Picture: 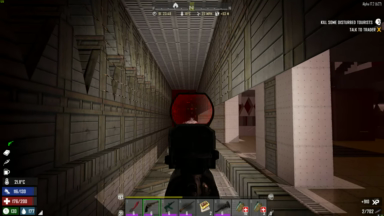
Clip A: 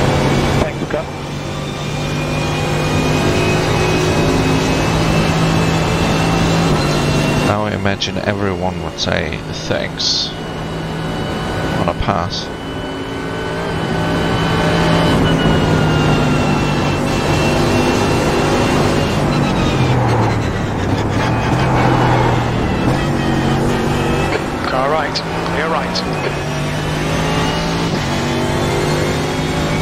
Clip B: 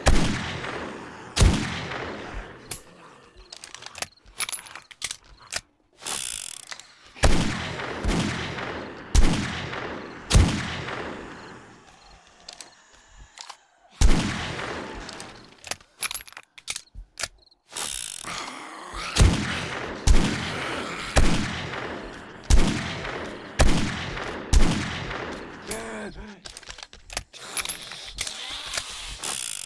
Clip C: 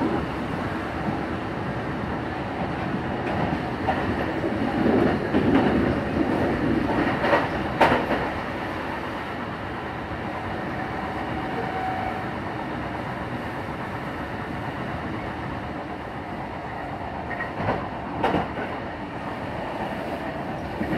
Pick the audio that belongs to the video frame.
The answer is B